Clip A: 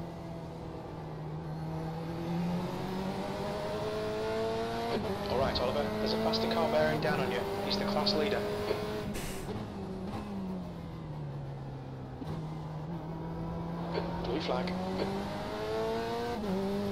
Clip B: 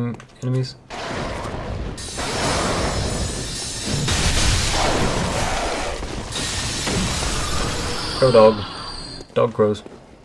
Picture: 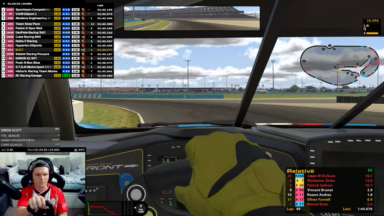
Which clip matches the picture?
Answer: A